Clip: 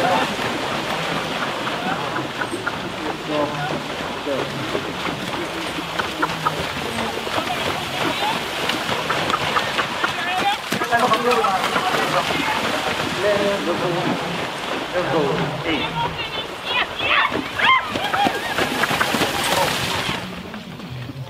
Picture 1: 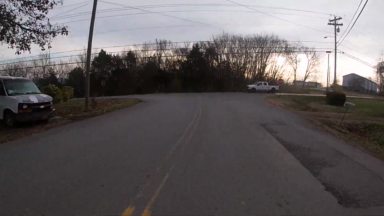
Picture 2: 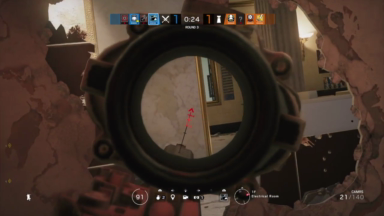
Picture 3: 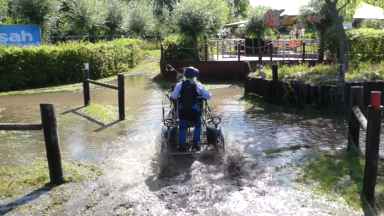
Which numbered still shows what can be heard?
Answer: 3